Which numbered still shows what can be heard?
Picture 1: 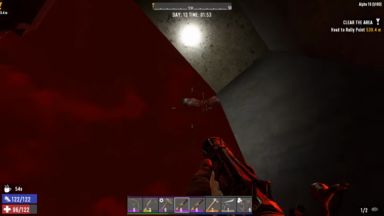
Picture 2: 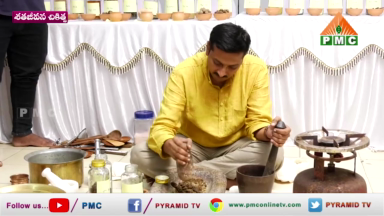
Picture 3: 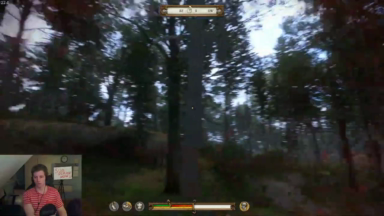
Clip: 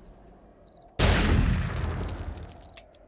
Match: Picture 1